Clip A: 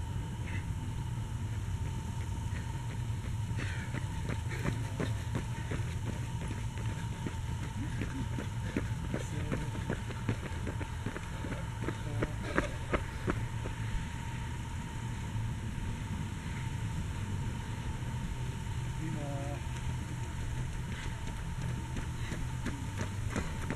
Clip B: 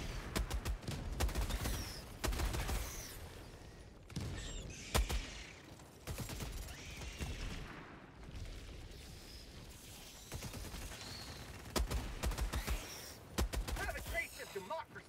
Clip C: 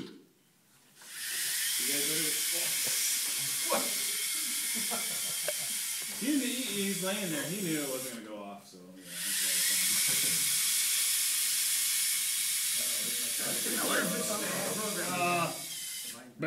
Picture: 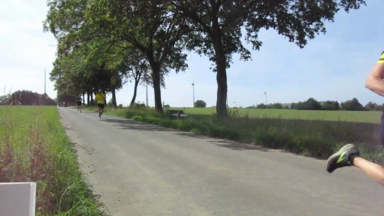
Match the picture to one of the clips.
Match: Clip A